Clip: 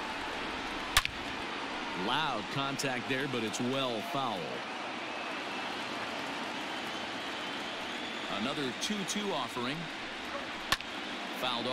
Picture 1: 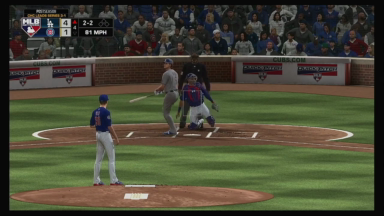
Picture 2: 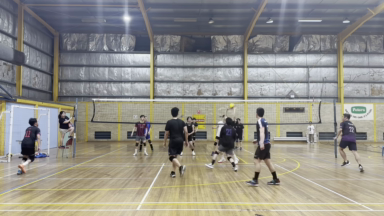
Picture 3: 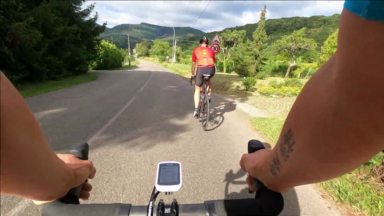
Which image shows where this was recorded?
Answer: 1